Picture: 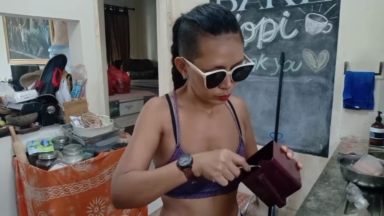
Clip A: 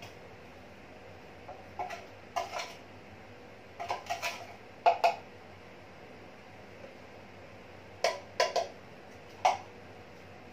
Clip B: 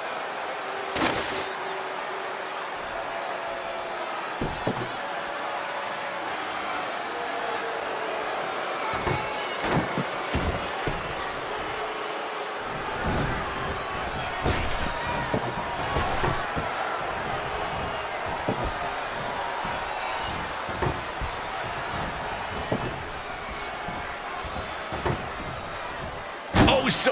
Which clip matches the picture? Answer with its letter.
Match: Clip A